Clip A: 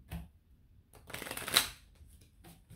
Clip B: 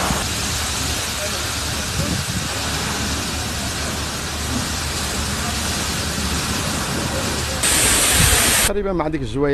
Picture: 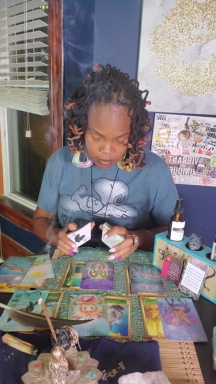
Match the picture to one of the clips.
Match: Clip A